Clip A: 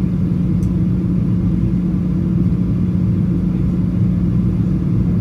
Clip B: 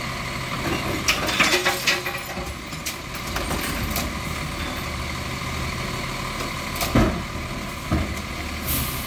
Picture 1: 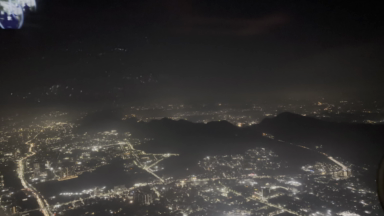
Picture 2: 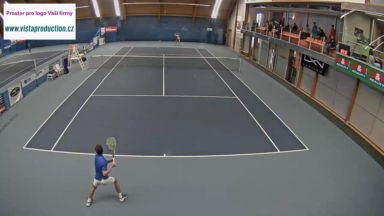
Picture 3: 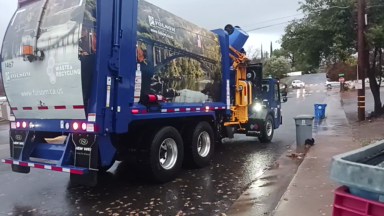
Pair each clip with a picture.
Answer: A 1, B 3